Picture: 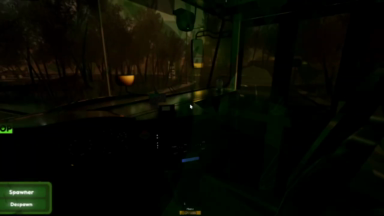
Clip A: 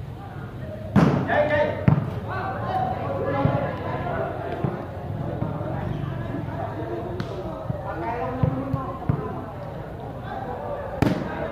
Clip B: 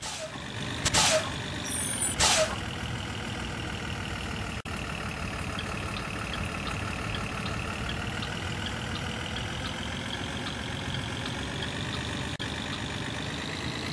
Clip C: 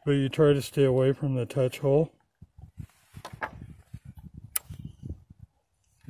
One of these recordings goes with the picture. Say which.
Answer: B